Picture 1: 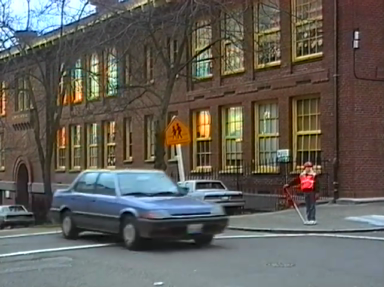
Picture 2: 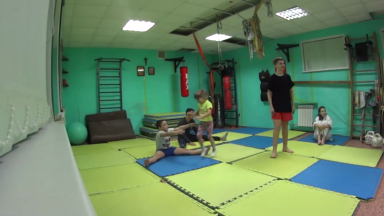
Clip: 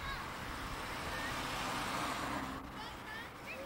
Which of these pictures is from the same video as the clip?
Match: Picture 1